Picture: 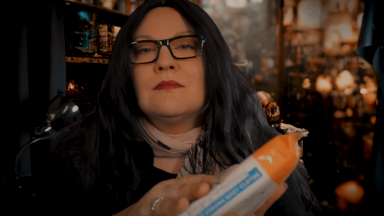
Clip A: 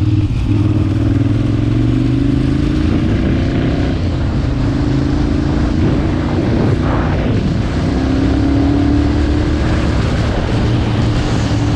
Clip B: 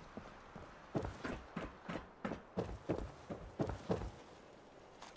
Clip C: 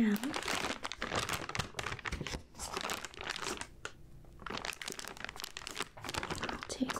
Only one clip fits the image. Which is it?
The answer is C